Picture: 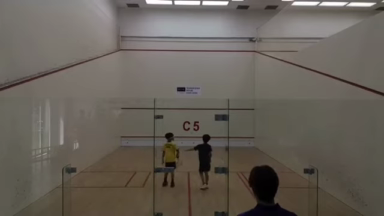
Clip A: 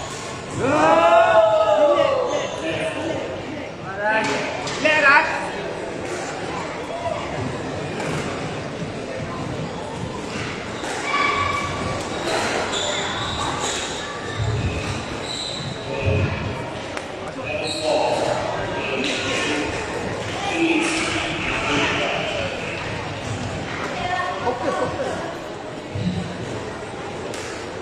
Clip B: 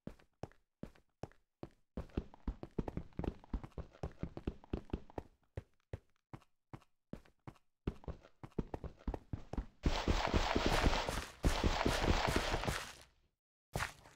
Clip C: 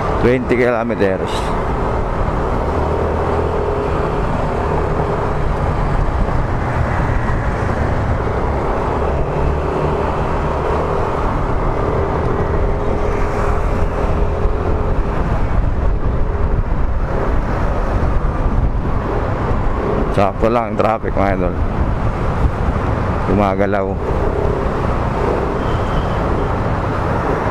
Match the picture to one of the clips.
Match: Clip A